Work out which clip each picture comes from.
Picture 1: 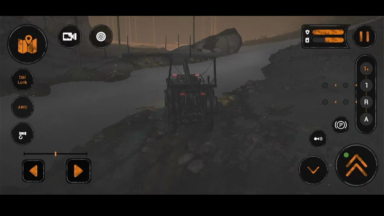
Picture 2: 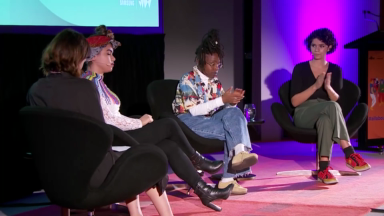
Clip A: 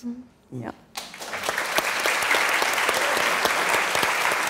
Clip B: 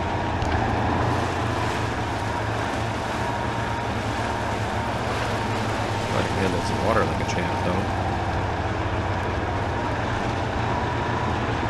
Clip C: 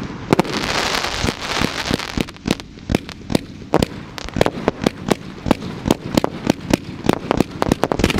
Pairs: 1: B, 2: A